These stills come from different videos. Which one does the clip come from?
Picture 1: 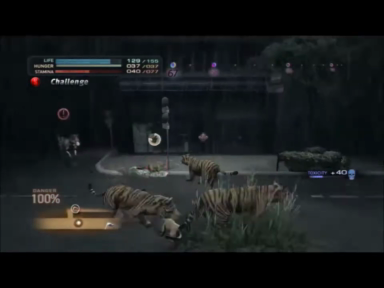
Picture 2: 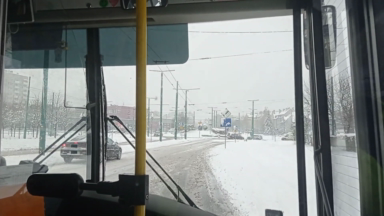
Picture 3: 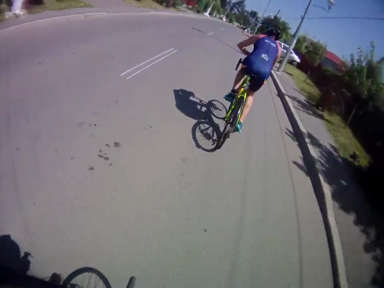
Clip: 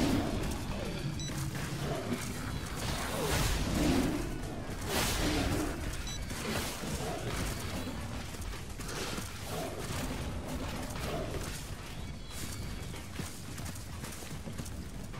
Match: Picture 1